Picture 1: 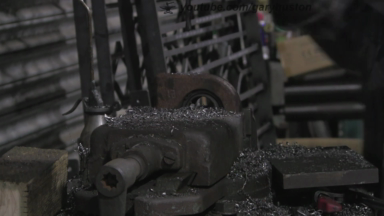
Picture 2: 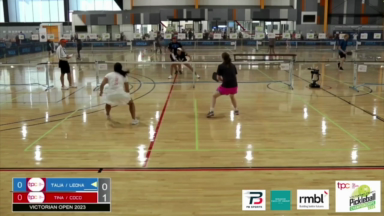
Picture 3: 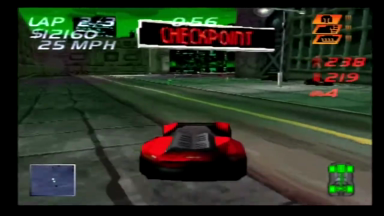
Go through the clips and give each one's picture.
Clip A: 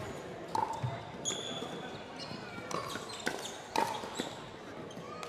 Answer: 2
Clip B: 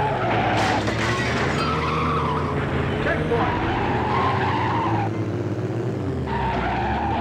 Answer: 3